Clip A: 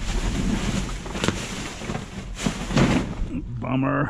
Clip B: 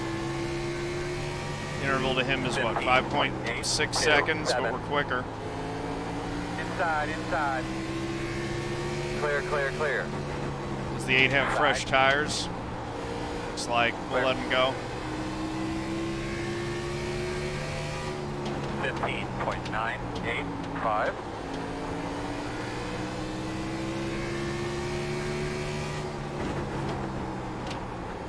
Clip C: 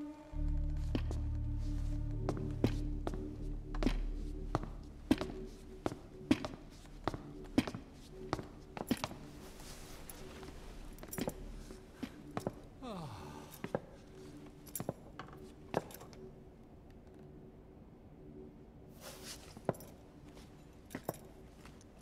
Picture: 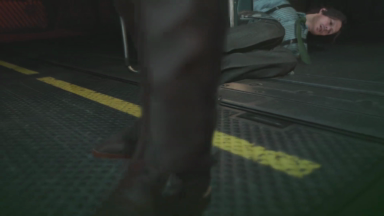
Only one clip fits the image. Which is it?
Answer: C